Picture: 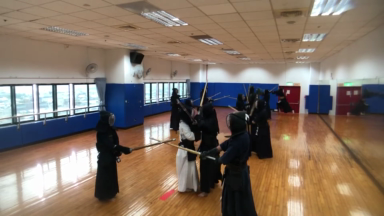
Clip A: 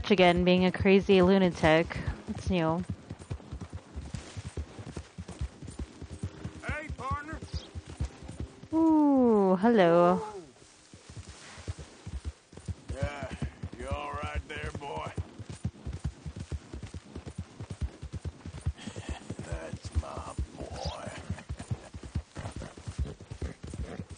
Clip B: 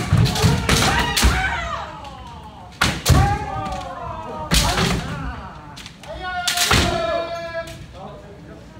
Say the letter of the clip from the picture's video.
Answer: B